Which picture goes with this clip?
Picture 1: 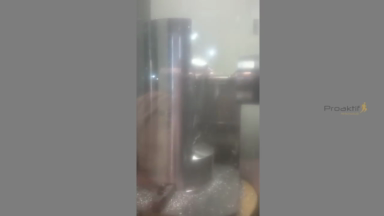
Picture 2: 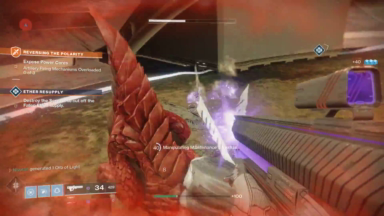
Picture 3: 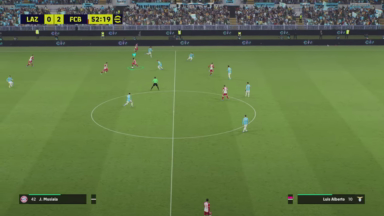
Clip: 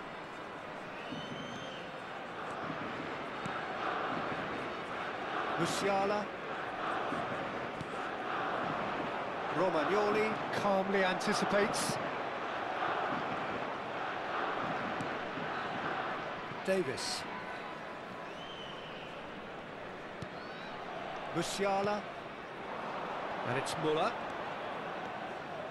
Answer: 3